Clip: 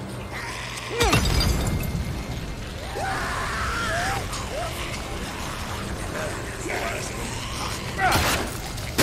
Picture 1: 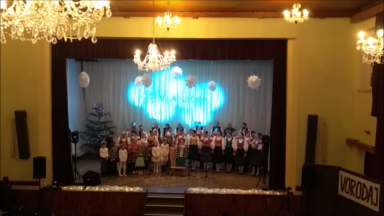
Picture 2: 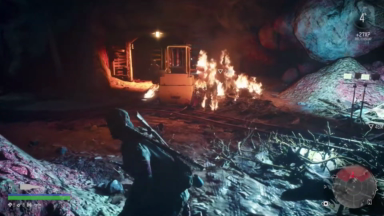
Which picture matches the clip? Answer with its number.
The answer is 2